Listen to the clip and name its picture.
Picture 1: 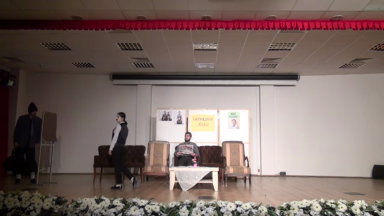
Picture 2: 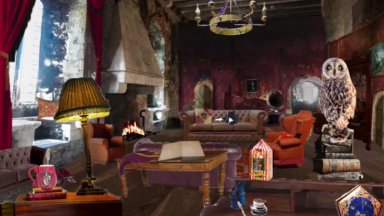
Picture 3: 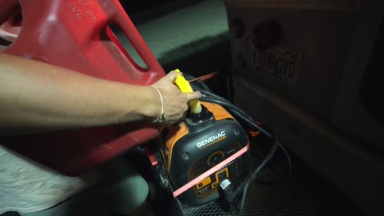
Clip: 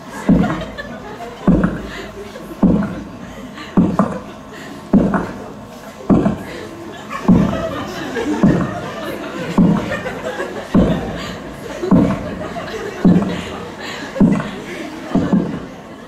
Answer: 1